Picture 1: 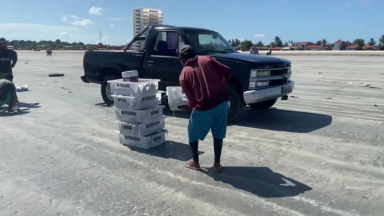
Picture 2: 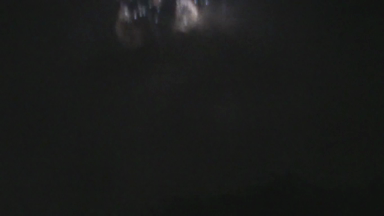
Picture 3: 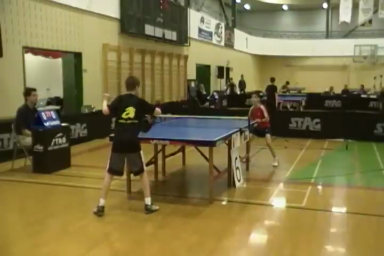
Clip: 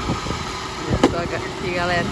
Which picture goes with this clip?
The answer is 1